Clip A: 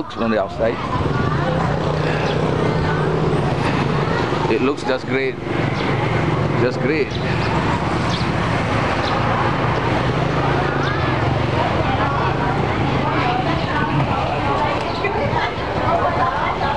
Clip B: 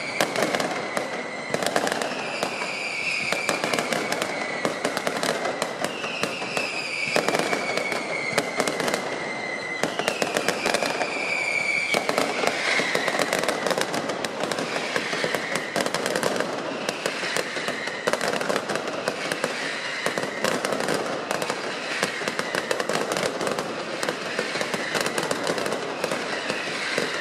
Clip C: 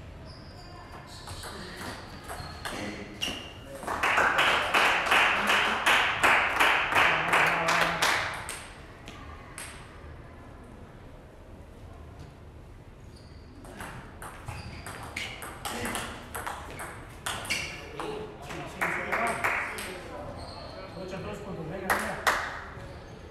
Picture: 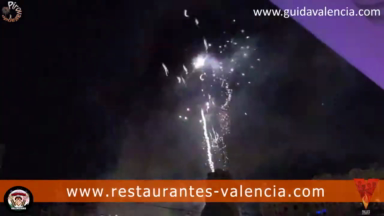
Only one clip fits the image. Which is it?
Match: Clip B